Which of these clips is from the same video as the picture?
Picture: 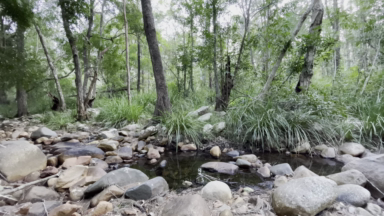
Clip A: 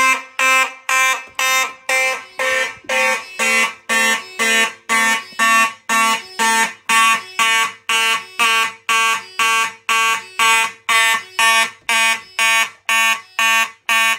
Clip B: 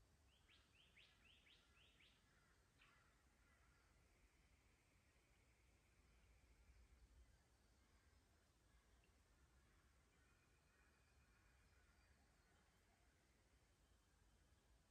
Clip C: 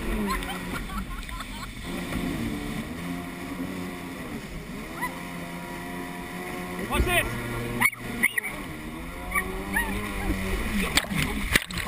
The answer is B